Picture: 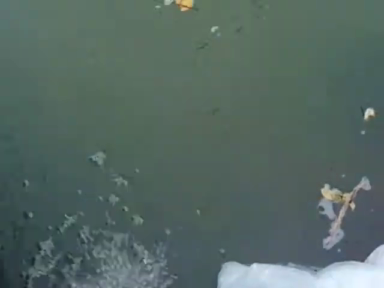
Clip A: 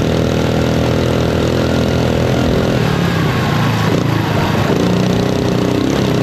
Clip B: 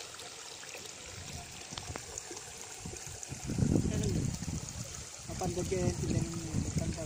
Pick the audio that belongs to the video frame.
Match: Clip B